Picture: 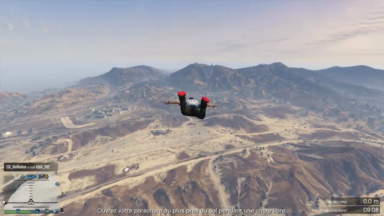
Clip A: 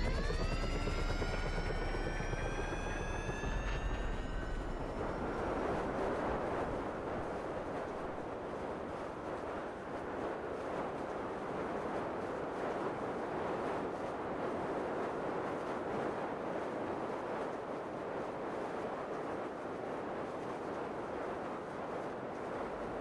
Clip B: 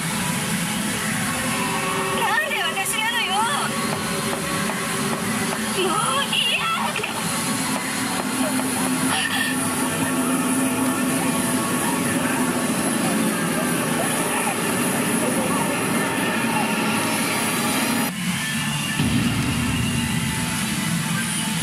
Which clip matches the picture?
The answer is A